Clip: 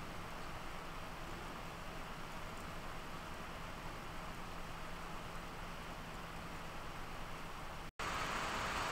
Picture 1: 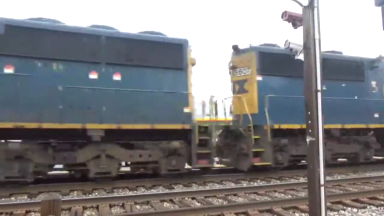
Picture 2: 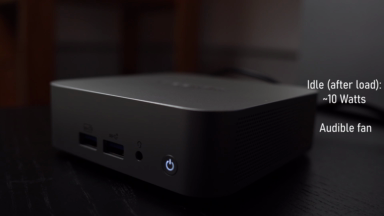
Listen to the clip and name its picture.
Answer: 2